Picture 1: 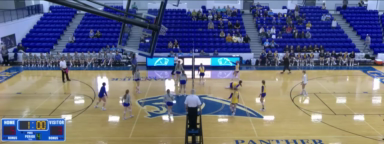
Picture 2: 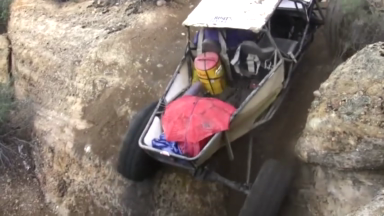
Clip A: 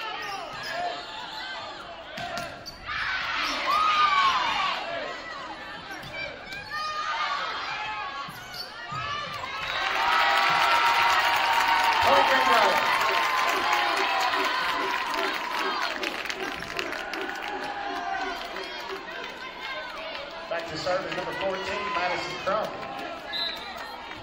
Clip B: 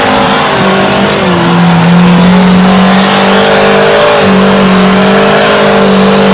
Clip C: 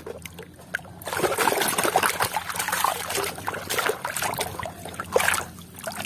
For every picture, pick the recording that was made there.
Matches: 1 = A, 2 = B